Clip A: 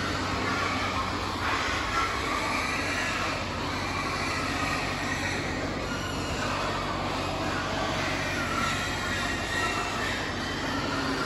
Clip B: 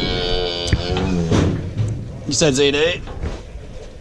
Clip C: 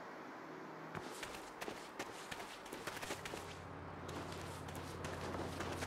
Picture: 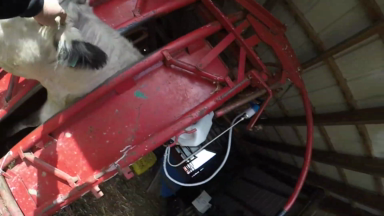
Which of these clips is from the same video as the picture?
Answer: B